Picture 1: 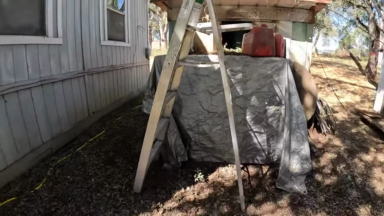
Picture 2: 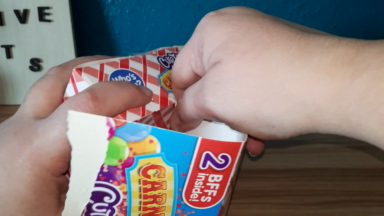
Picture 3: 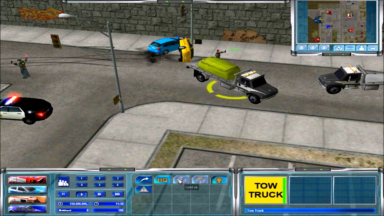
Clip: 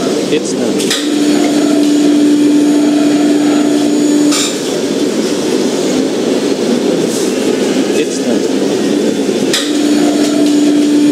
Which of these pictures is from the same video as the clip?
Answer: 3